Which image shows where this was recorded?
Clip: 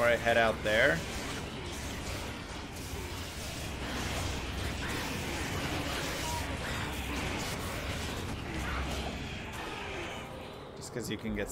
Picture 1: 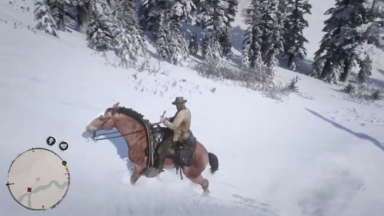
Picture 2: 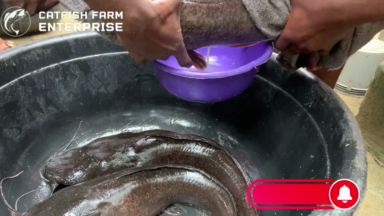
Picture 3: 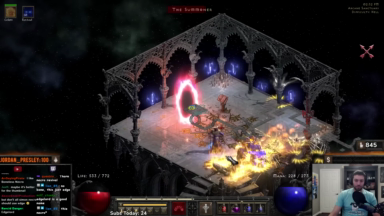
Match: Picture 3